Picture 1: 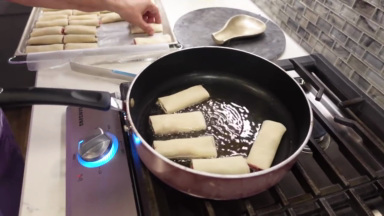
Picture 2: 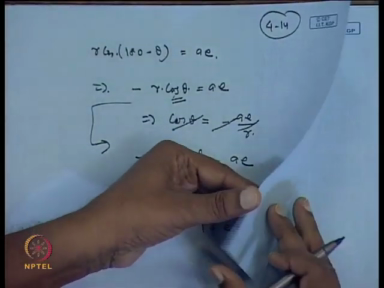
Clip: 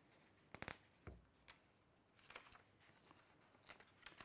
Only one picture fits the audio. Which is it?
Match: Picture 2